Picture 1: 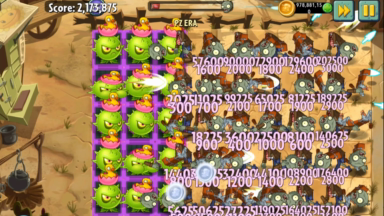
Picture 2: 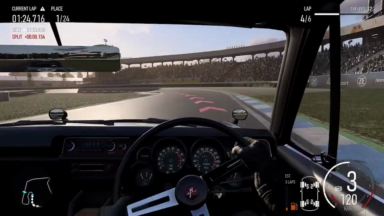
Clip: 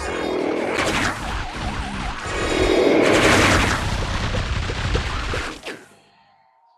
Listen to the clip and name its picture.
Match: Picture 1